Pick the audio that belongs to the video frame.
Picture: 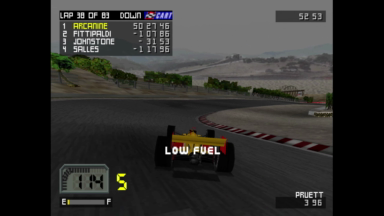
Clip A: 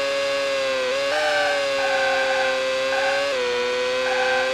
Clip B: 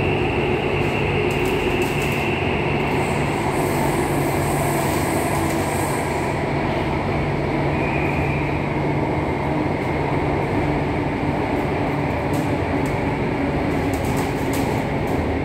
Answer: A